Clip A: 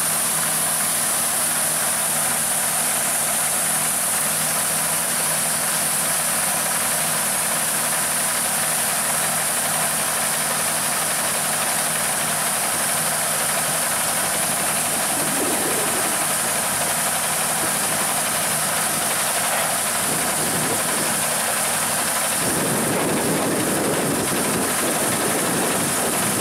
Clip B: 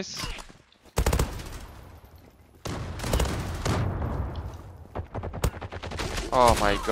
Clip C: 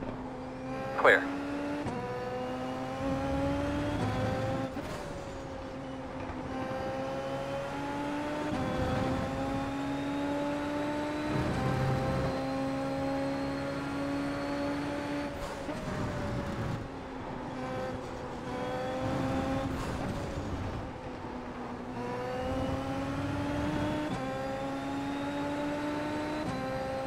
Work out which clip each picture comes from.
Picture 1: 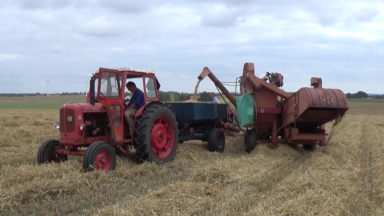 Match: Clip A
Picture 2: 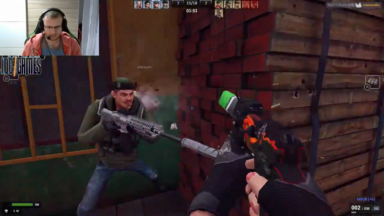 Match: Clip B